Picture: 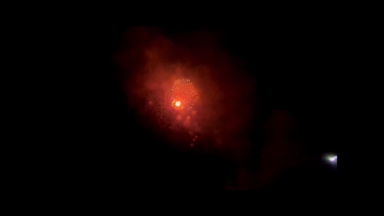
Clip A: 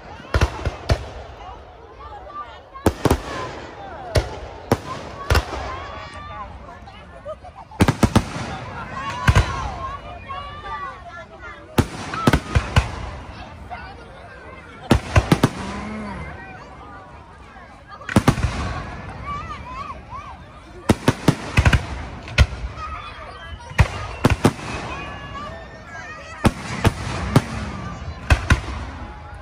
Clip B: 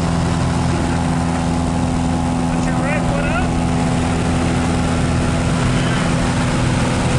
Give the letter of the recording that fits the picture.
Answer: A